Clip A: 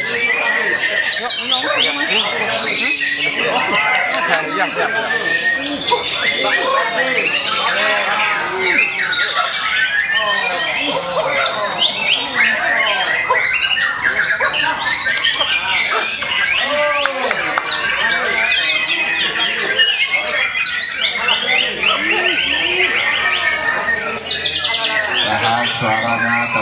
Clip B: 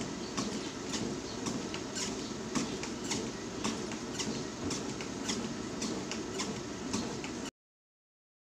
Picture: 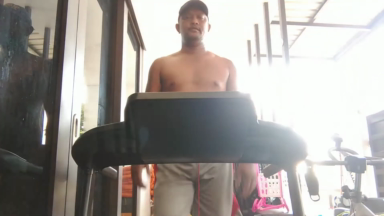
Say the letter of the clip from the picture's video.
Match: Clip B